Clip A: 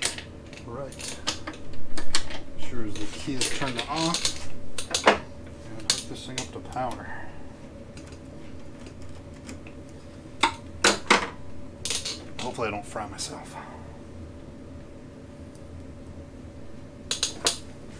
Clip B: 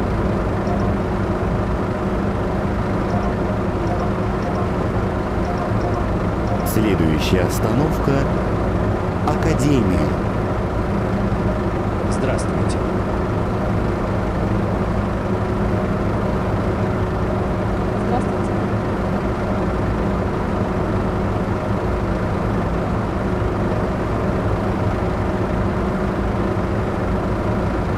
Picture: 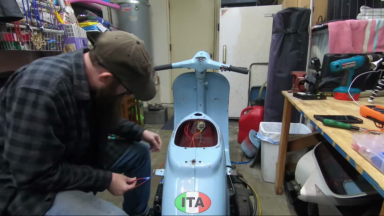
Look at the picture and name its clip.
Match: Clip A